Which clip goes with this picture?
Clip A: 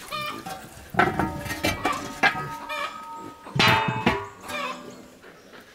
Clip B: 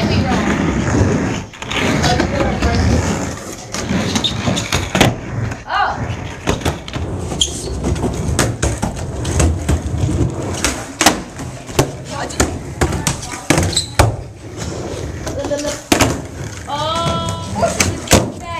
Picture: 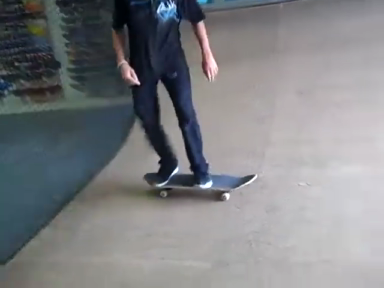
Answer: B